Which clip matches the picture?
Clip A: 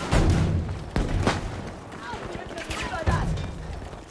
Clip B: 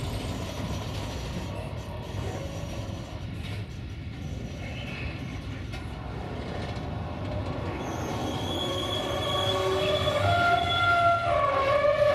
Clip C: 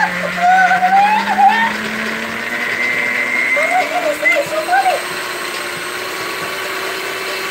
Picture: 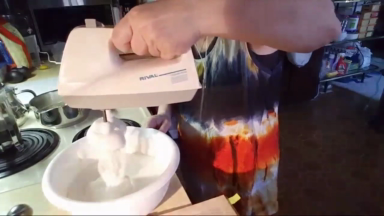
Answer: C